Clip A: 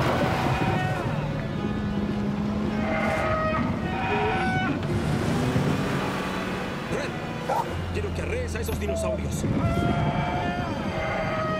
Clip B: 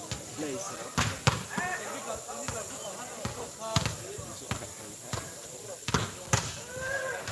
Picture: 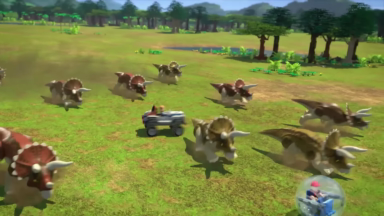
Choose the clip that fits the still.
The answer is A